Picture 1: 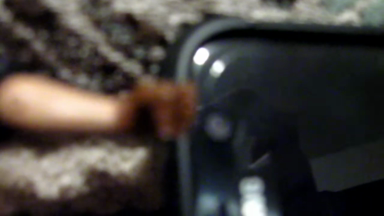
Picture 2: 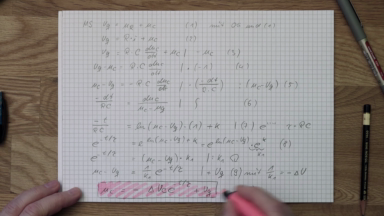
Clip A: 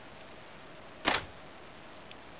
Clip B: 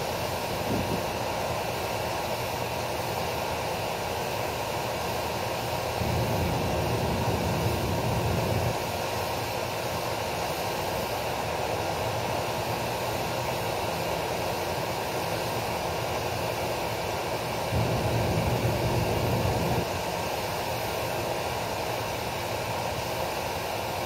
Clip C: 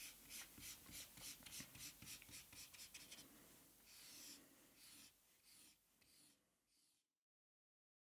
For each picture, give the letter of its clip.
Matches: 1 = A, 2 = C